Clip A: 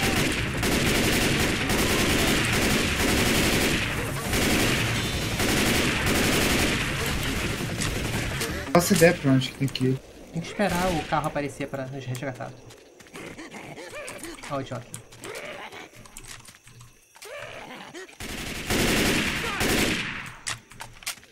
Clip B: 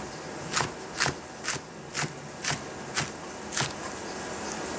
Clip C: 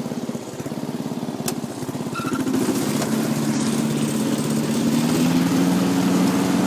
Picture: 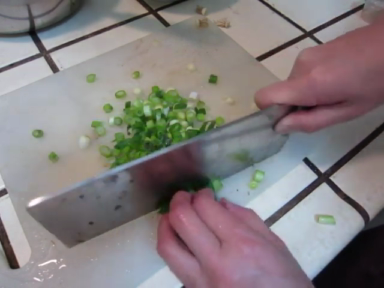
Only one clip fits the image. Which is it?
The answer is B